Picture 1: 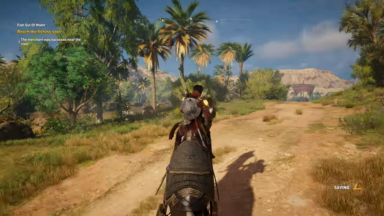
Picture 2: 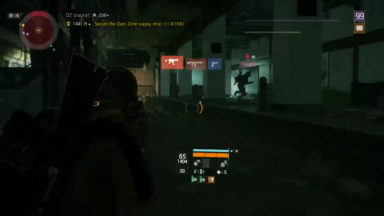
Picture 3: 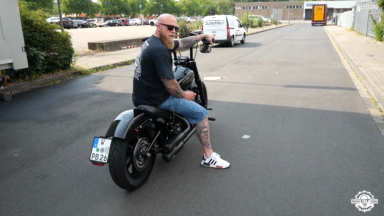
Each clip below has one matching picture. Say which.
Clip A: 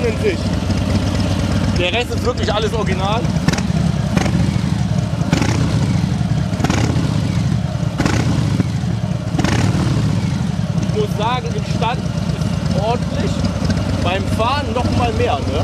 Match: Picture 3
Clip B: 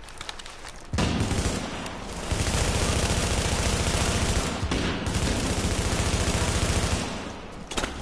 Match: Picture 2